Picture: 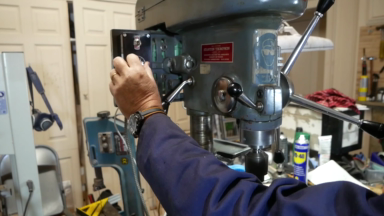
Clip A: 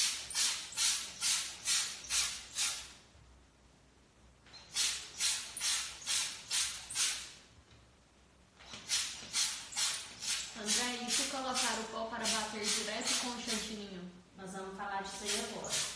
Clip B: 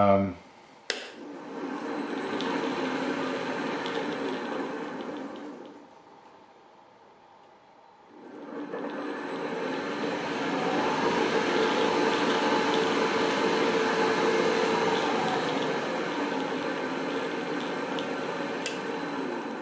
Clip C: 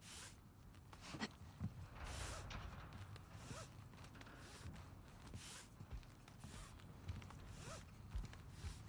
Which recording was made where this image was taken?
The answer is B